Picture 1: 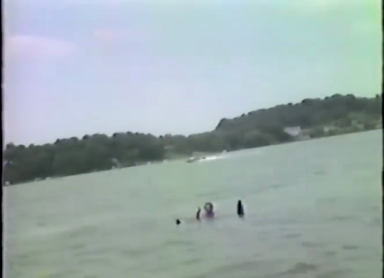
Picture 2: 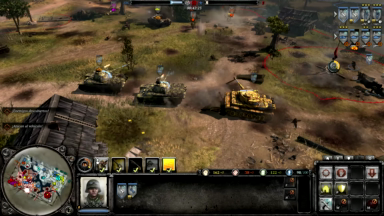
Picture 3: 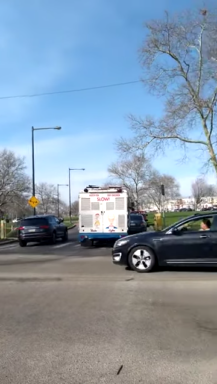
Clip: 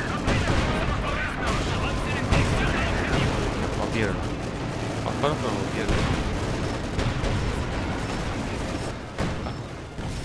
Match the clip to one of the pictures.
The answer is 2